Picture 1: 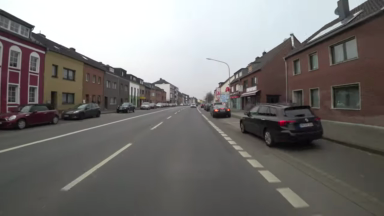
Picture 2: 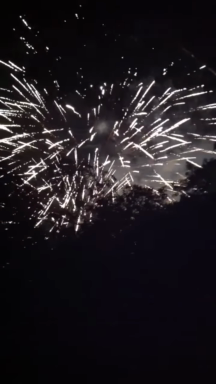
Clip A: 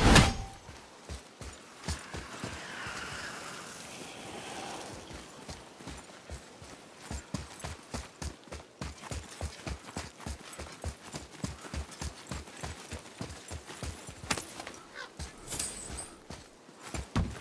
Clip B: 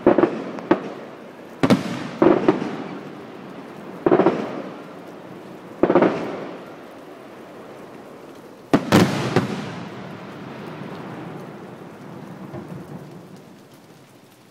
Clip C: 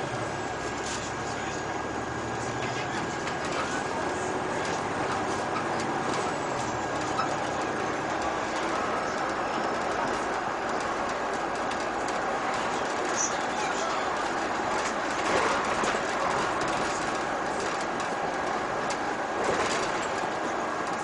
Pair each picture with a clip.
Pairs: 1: C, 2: B